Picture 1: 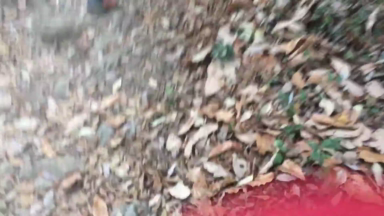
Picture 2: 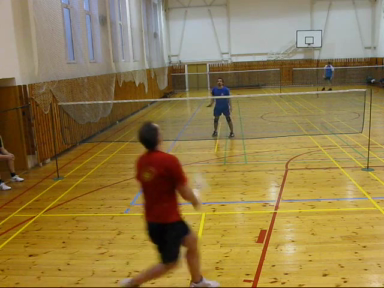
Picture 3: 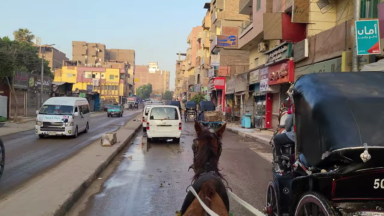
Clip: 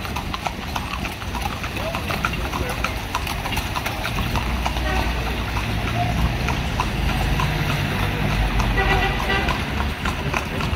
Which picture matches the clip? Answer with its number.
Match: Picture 3